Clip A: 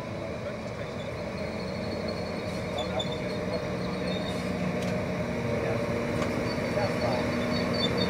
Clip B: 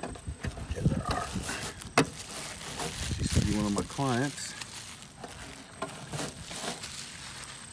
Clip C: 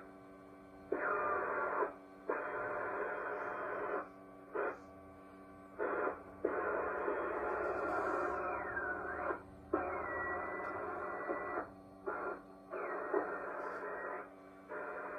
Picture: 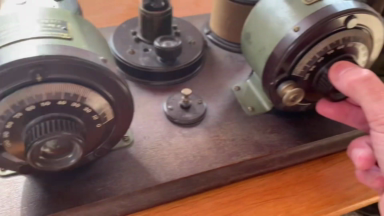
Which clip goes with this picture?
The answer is C